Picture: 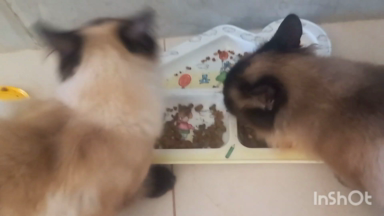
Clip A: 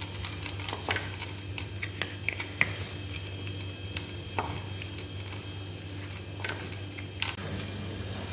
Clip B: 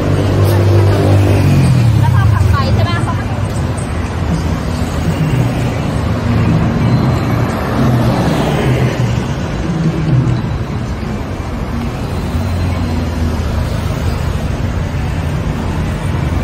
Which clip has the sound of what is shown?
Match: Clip A